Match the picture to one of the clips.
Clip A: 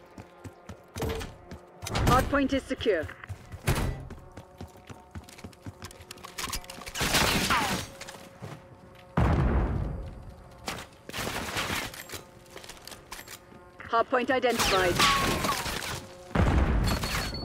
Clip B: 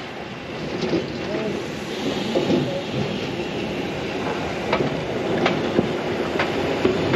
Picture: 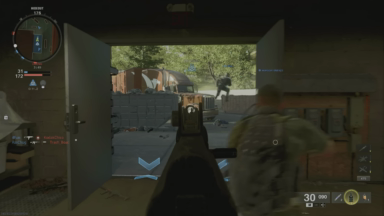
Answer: A